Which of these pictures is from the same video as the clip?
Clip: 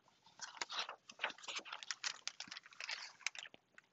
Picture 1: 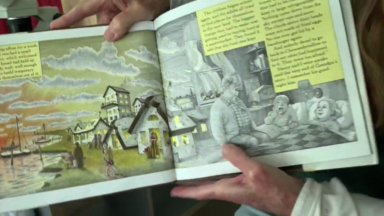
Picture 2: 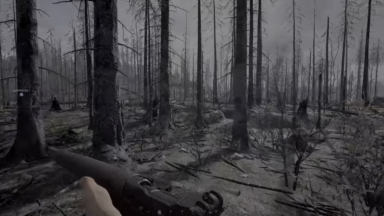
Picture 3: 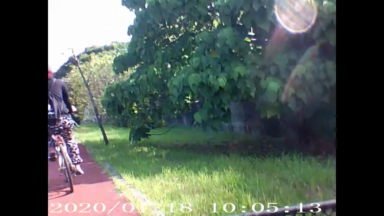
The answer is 1